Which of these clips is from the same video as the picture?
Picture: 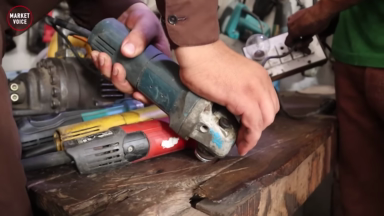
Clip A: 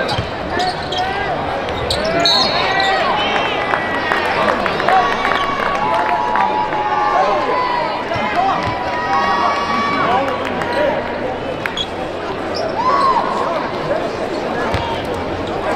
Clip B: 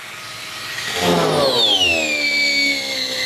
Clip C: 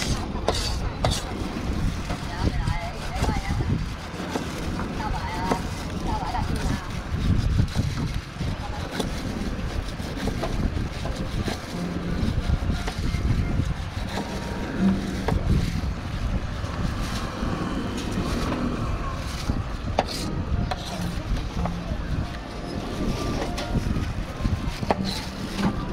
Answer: B